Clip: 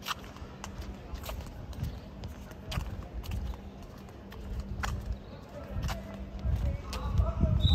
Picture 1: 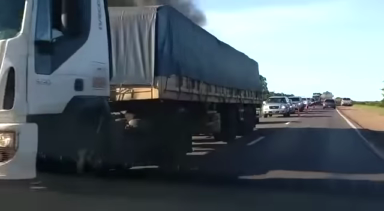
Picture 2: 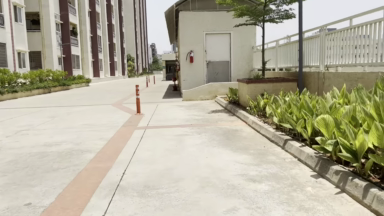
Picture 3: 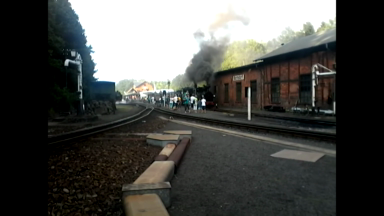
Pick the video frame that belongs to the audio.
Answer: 2